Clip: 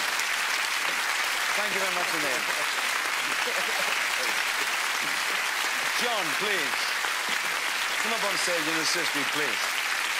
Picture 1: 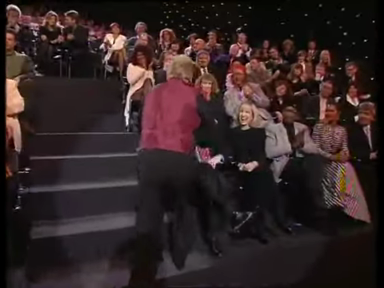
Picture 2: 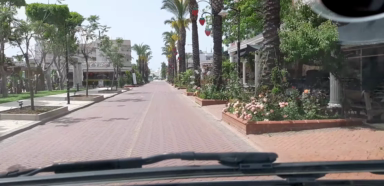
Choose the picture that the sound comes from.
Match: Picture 1